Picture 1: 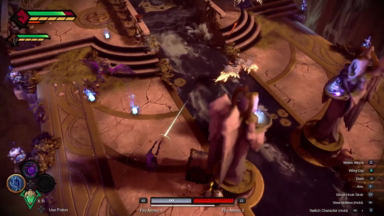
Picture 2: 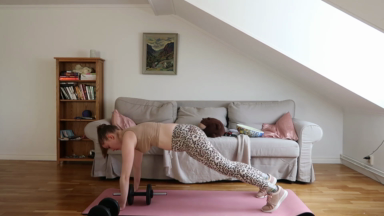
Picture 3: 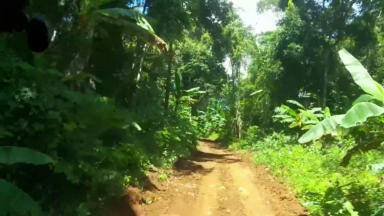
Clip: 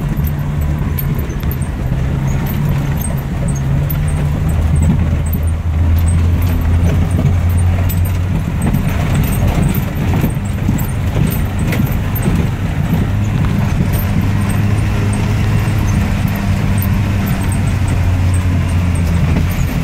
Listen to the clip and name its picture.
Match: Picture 3